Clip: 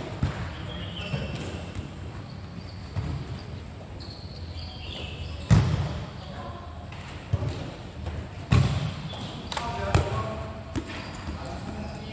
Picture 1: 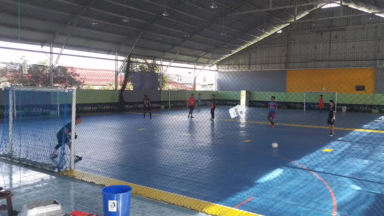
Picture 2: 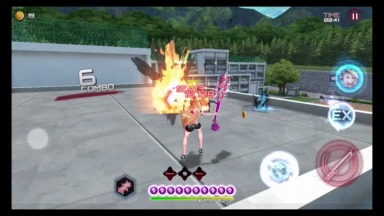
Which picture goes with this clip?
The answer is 1